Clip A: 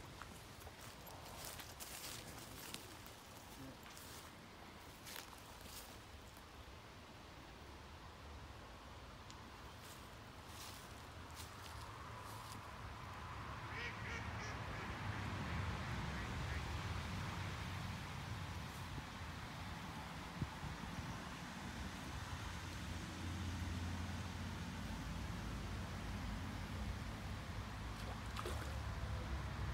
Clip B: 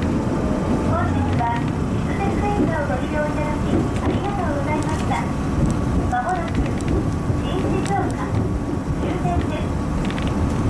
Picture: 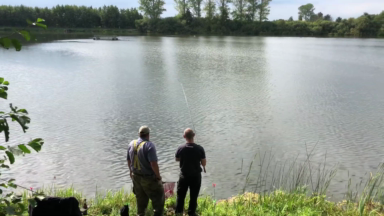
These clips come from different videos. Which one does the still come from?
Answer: A